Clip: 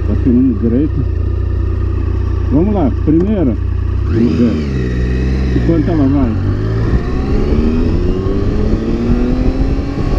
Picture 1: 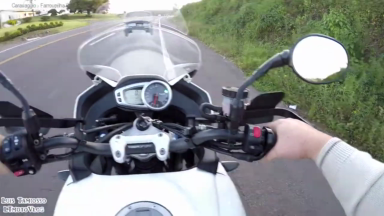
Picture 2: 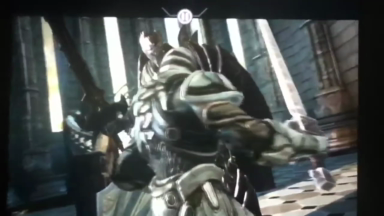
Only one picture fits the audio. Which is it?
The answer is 1